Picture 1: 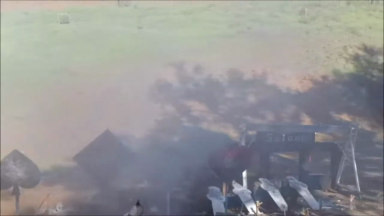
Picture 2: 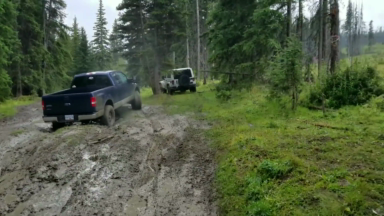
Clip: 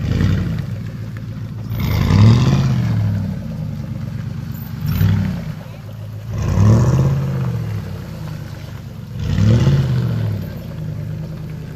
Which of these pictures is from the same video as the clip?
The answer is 2